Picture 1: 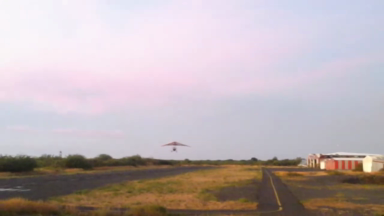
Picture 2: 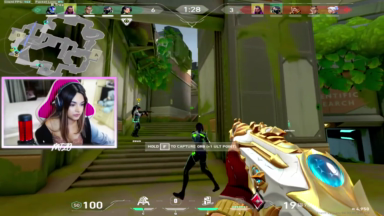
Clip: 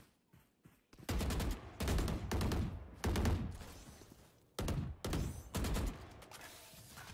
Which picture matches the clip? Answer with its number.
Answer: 2